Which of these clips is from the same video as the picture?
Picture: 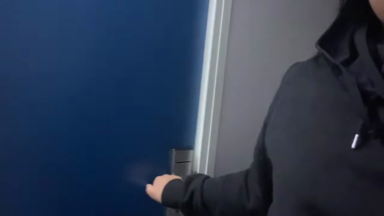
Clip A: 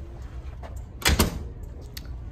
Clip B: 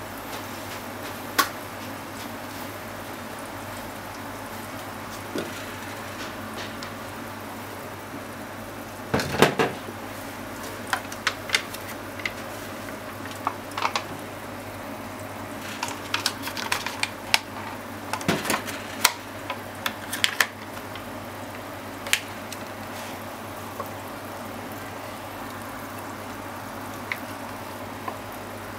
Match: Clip A